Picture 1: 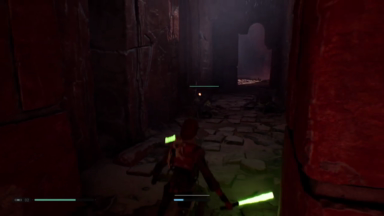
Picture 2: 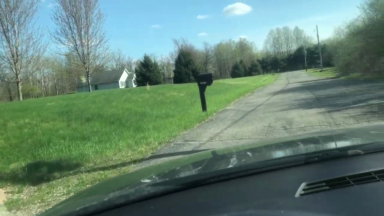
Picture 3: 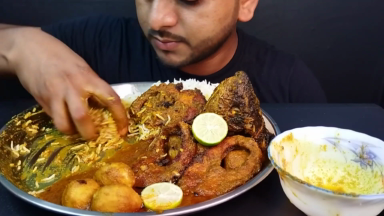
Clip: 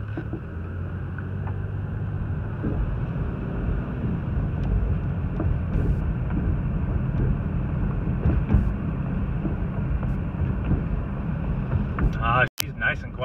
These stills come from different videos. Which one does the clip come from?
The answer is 2